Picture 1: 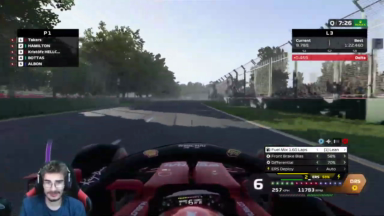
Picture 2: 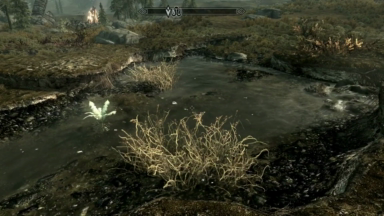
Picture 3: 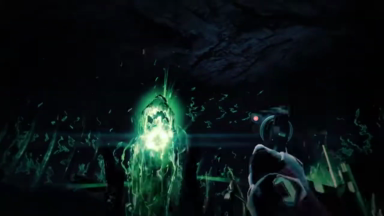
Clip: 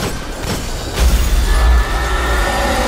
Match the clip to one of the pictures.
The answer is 3